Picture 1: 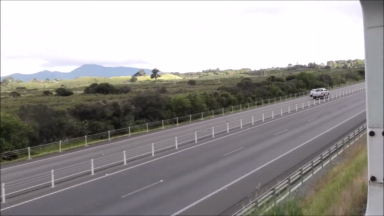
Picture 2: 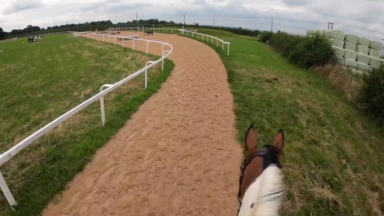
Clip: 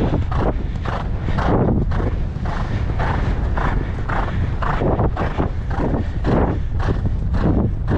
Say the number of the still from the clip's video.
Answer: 2